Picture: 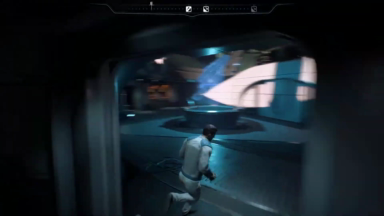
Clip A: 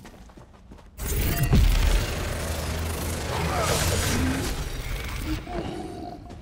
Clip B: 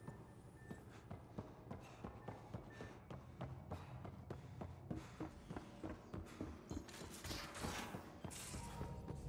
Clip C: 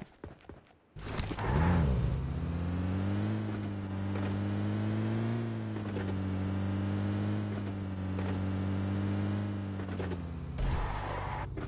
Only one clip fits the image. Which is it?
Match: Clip B